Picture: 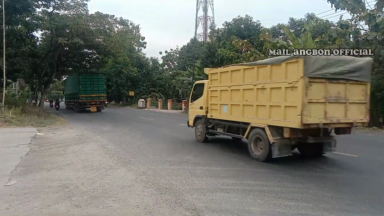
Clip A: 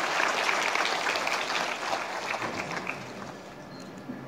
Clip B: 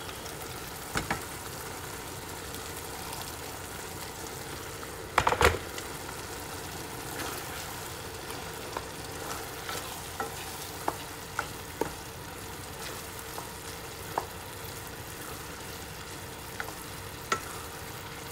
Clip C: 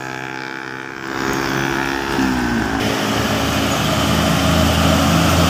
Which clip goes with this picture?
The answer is C